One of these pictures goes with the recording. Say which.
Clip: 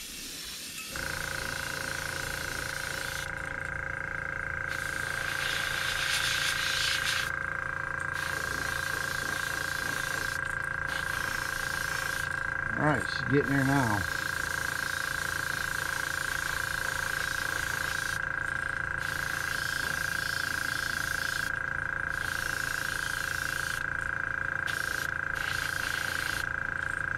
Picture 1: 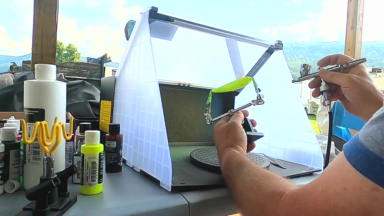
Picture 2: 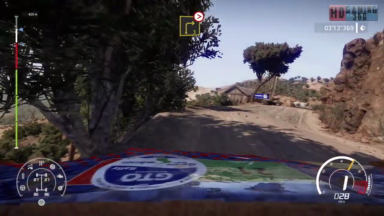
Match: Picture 1